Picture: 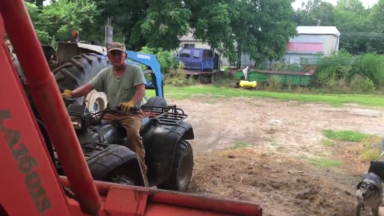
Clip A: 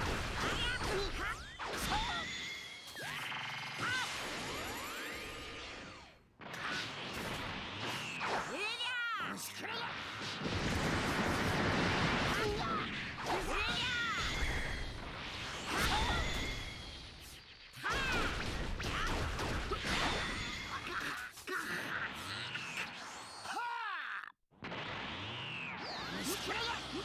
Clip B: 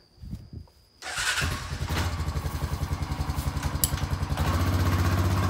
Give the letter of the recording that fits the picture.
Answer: B